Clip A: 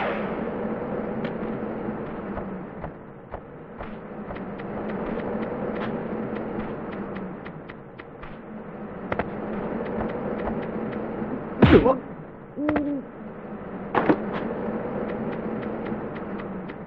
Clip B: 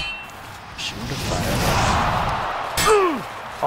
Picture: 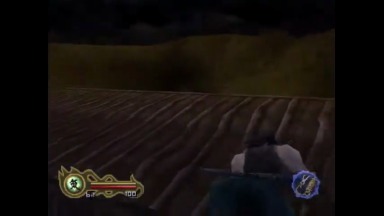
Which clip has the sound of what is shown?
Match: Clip A